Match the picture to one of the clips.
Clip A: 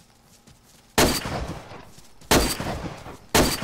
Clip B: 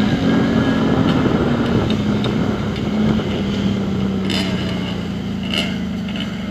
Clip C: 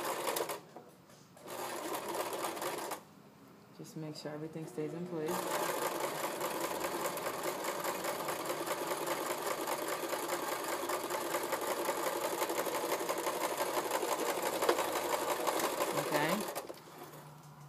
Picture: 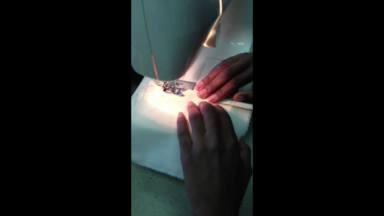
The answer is C